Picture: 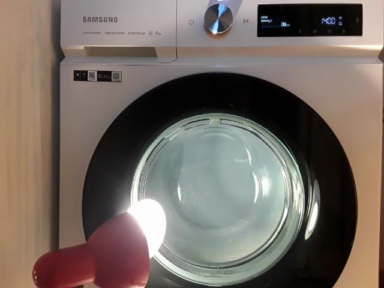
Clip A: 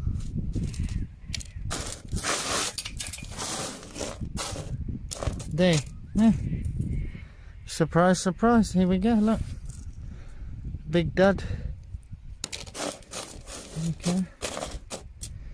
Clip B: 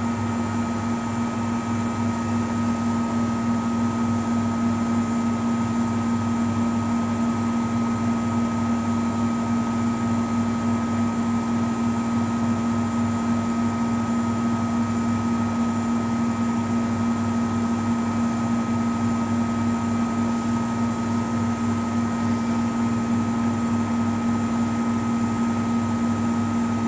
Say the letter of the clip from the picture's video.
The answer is B